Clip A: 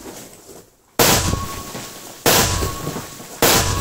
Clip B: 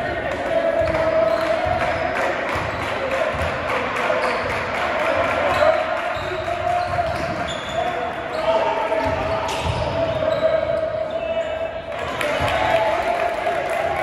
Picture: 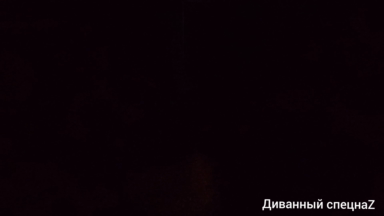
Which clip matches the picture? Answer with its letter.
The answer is A